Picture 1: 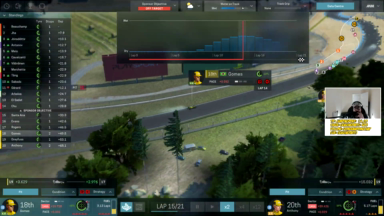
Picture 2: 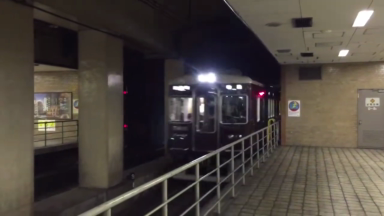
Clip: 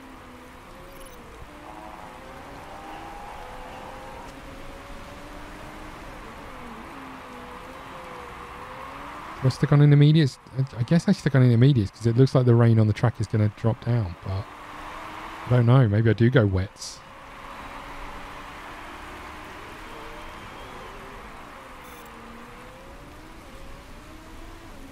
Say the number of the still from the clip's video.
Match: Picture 1